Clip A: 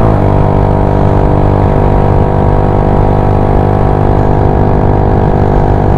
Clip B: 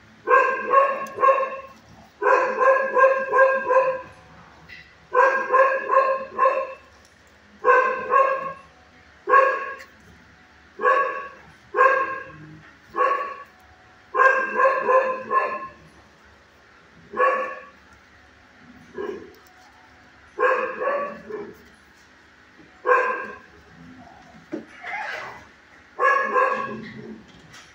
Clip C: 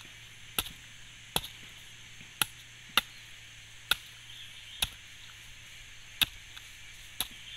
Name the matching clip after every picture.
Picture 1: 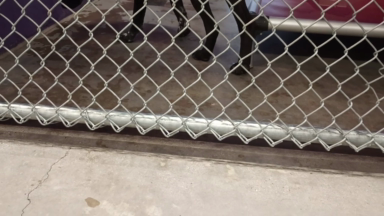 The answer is B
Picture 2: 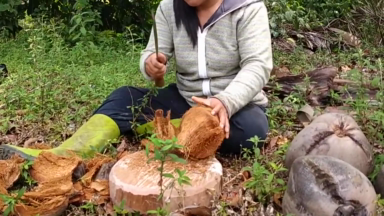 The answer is C